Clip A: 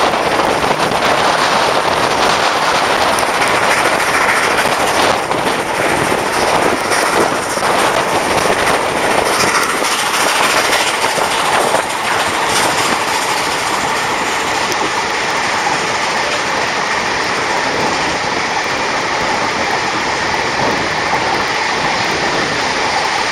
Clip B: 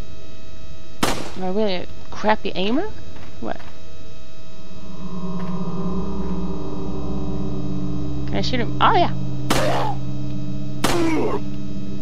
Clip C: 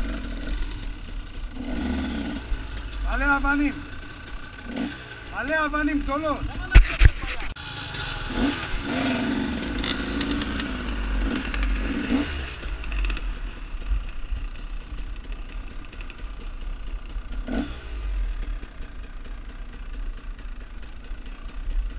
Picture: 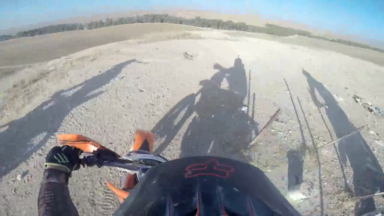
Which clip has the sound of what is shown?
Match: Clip C